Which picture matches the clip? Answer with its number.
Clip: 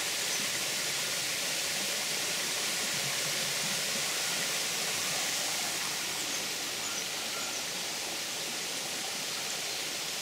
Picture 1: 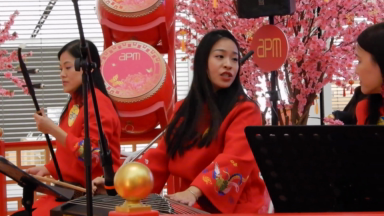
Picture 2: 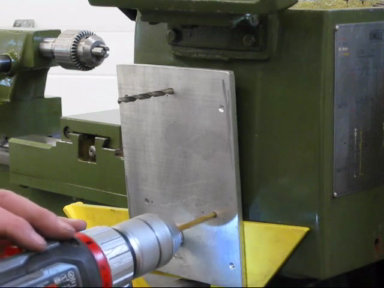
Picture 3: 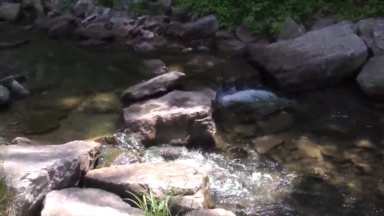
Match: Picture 3